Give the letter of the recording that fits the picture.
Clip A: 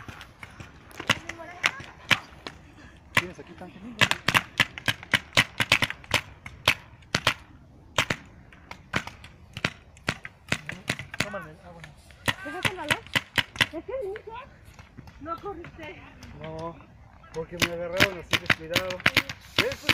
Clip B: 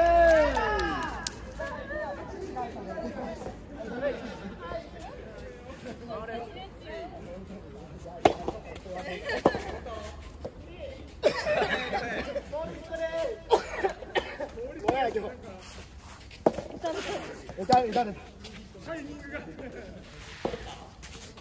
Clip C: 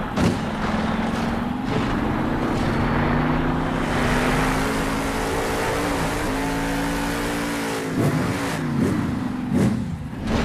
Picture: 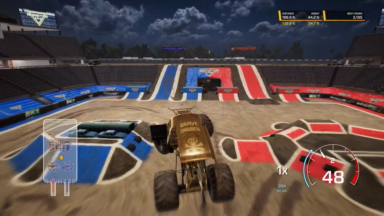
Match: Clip C